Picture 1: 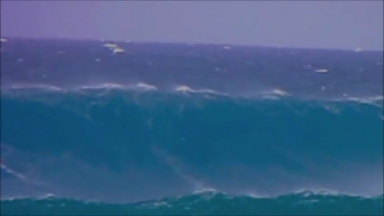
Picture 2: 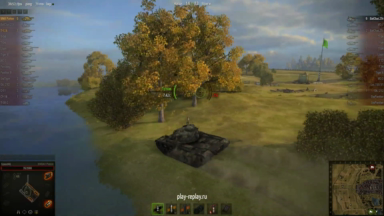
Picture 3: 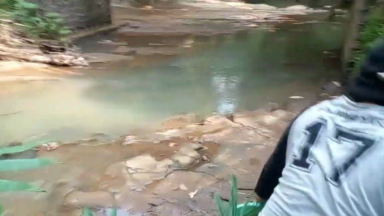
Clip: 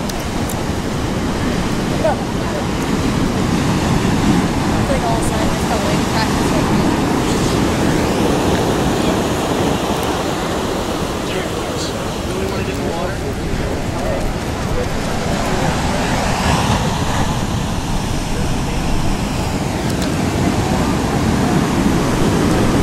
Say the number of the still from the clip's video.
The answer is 1